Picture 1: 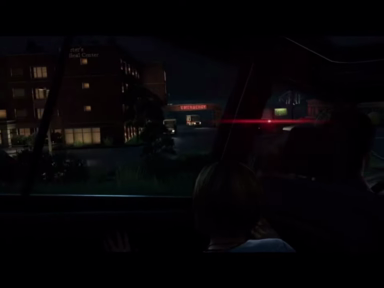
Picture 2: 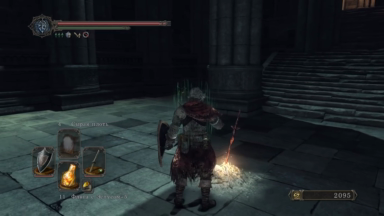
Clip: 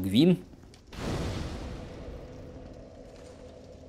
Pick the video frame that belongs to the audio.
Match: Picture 2